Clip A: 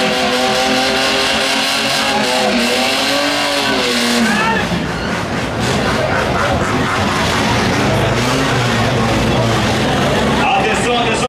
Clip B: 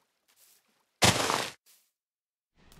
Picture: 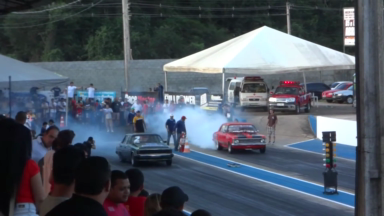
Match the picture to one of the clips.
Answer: A